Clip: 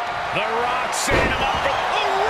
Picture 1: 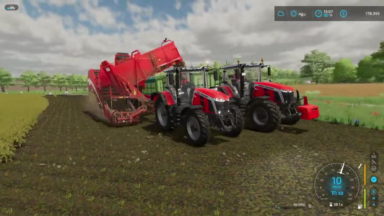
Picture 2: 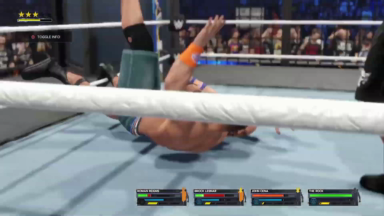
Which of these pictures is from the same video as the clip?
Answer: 2